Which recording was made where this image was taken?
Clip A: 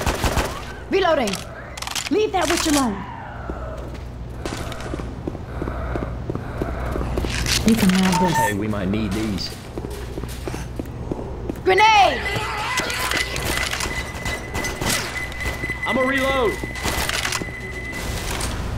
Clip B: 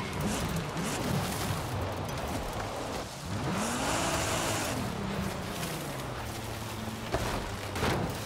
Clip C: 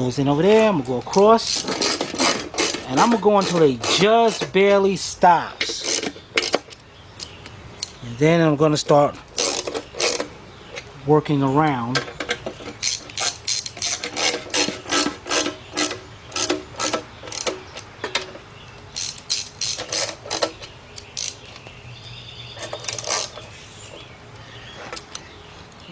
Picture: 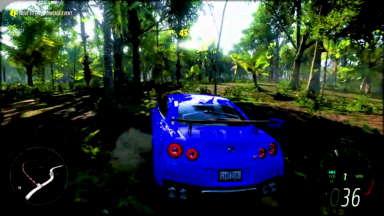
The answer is B